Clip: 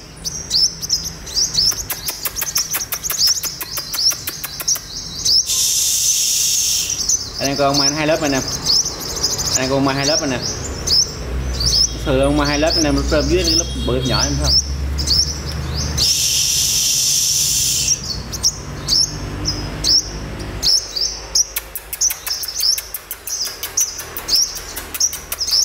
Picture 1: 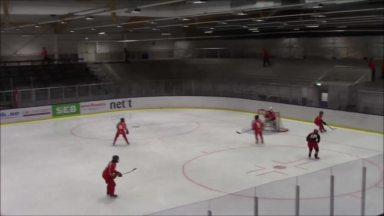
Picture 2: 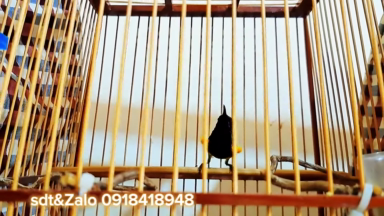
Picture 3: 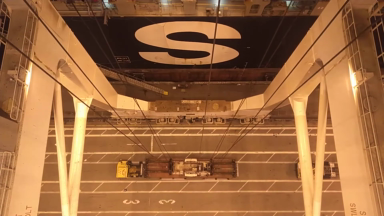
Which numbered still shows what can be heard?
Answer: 2